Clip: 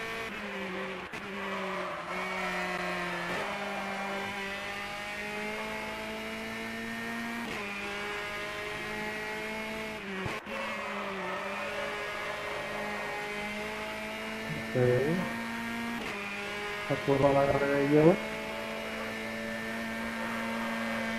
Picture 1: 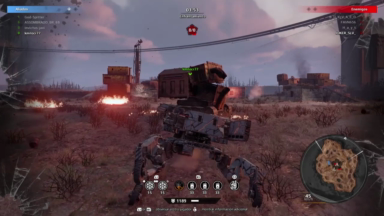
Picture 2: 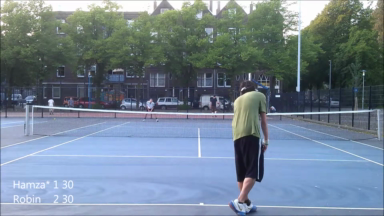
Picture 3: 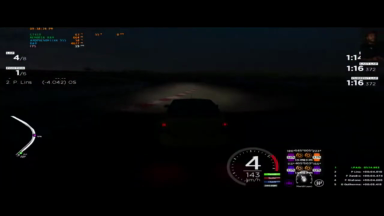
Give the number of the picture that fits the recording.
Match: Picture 3